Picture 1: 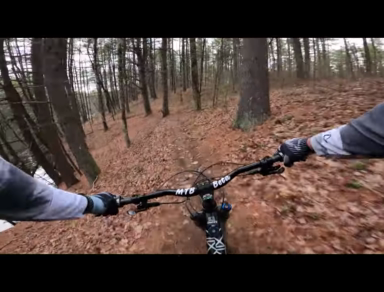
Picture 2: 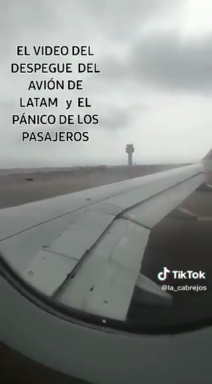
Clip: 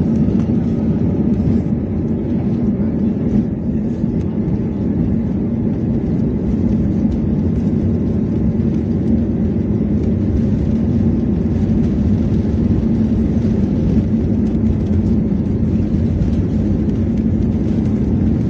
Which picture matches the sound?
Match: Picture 2